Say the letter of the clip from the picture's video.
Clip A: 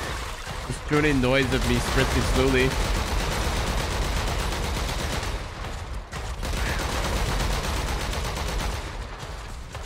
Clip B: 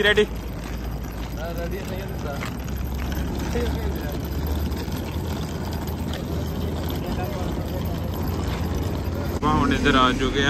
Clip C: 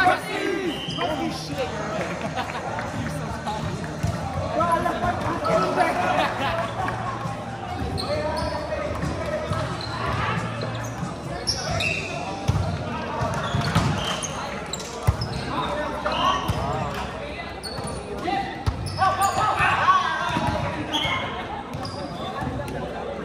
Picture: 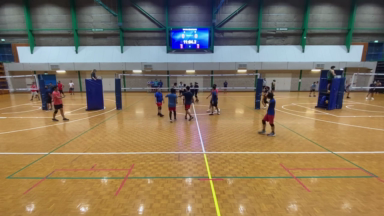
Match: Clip C